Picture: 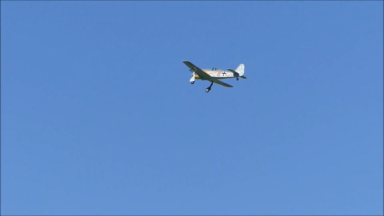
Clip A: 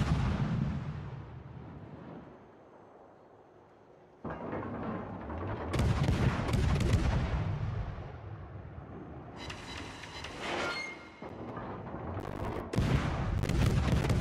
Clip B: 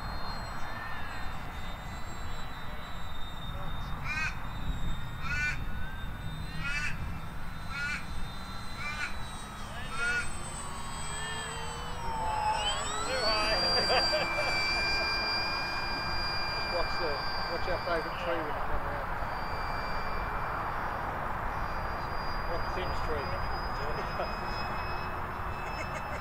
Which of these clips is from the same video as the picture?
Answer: B